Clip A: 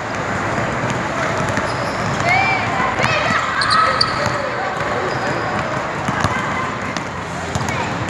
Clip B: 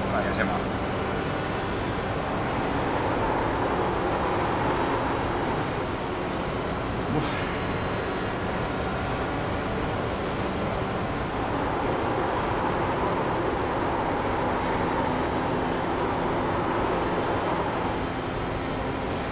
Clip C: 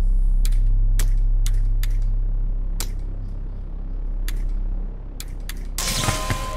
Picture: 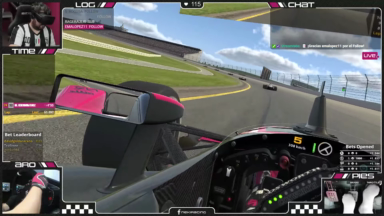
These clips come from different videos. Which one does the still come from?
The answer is B